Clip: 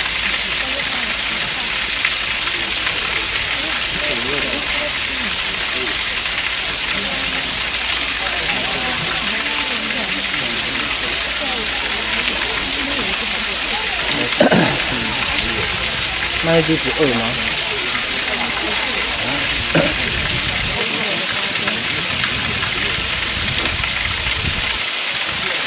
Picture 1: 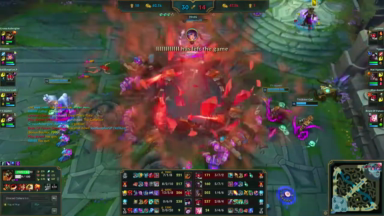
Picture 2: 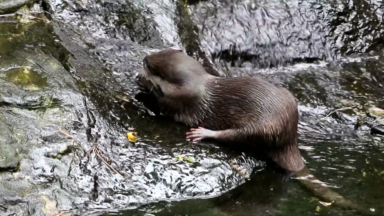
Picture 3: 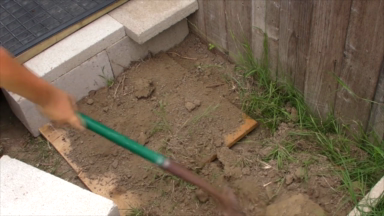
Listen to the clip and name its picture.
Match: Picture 2